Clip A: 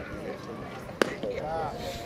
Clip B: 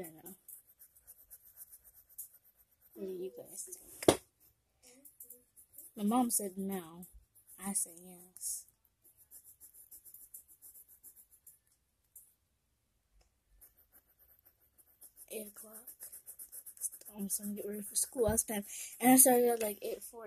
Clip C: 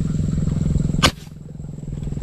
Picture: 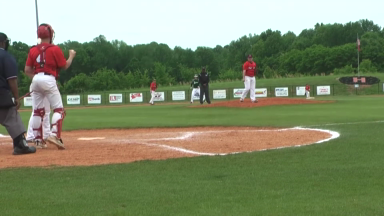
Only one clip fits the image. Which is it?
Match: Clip A